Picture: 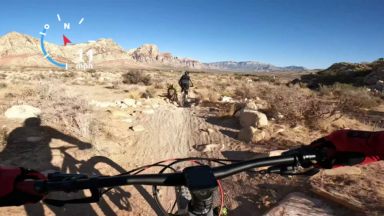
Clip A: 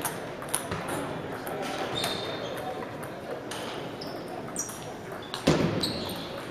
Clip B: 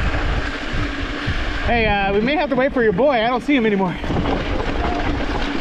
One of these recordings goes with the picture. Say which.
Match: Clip B